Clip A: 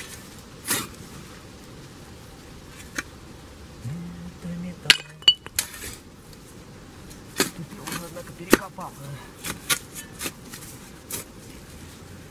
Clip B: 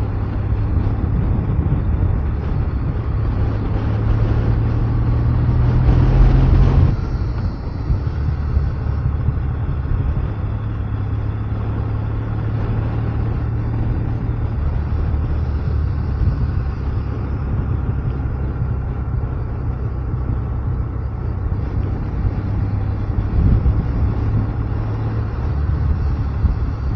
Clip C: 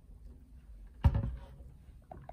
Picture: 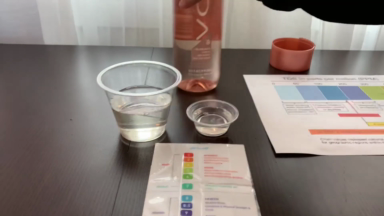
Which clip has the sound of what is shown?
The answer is C